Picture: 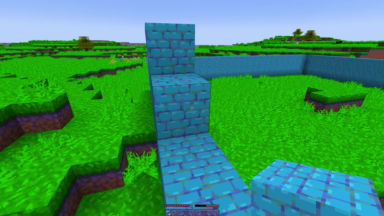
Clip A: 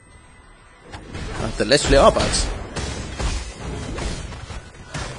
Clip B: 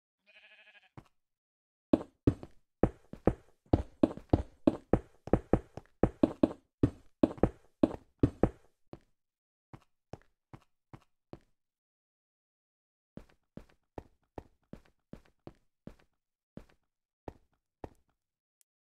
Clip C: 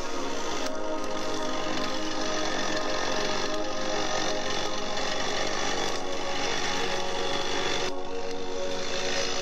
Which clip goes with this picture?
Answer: B